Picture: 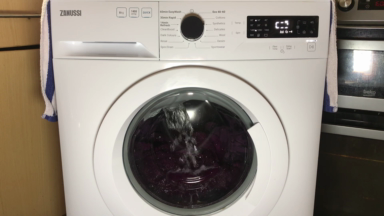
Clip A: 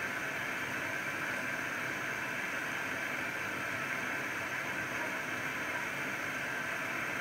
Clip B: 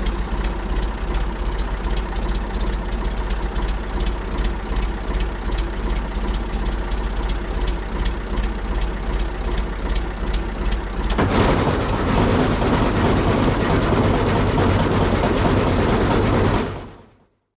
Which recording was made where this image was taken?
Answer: A